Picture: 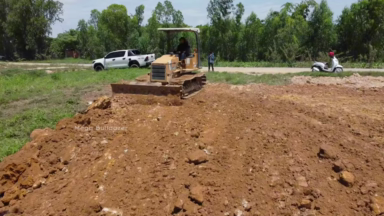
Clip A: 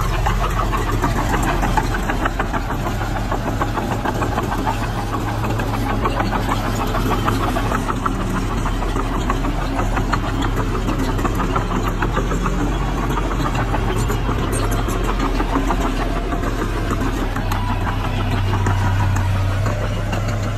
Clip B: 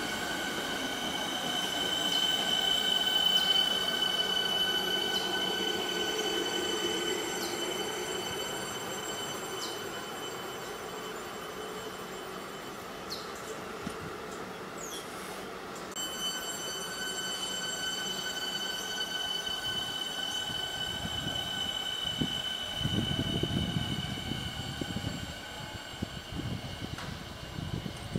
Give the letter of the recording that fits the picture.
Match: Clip A